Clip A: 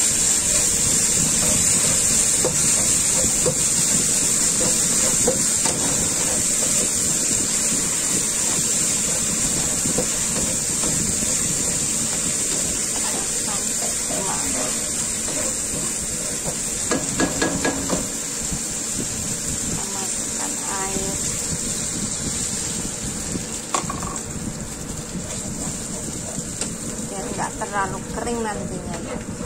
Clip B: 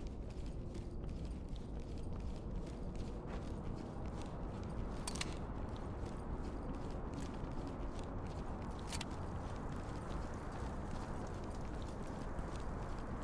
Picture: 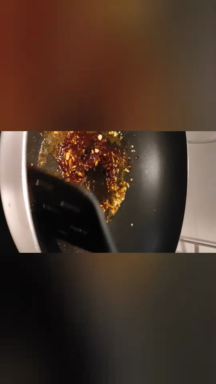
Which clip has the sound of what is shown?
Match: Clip A